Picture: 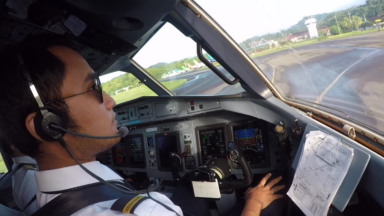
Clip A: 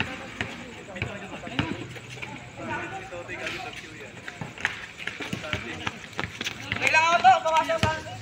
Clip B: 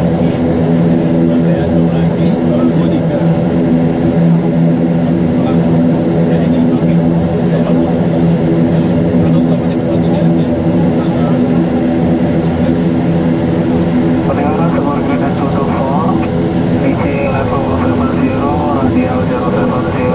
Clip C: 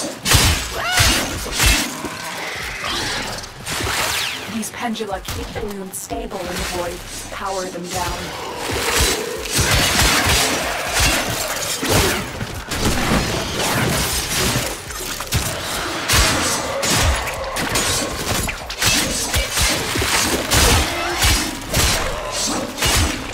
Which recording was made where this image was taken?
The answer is B